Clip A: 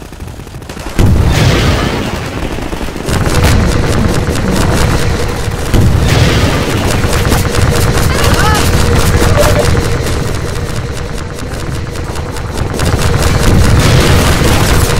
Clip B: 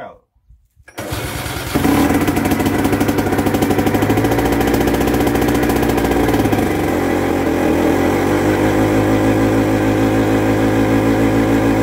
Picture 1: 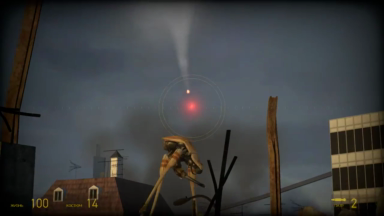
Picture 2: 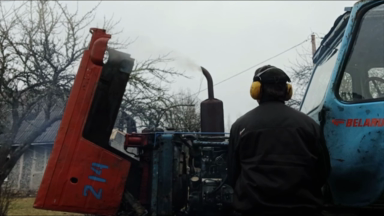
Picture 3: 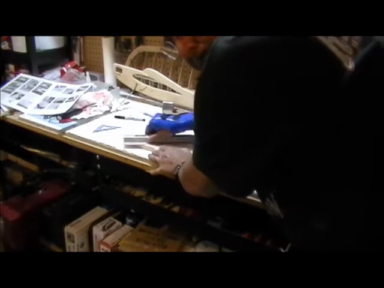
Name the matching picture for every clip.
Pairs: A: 1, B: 2